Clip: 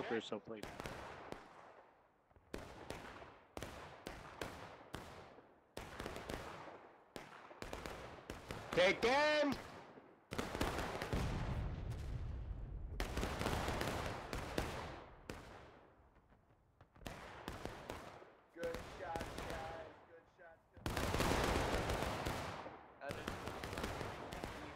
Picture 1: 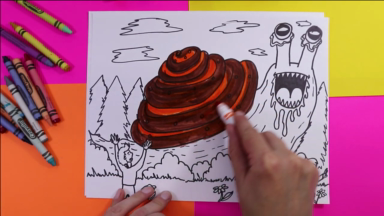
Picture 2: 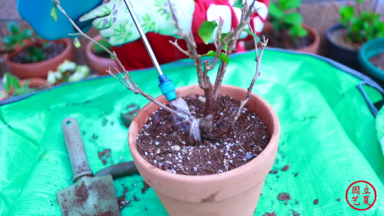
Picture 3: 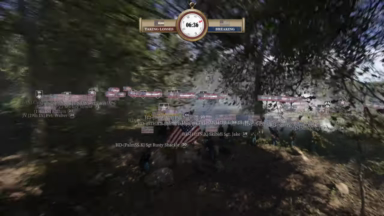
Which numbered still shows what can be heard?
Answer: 3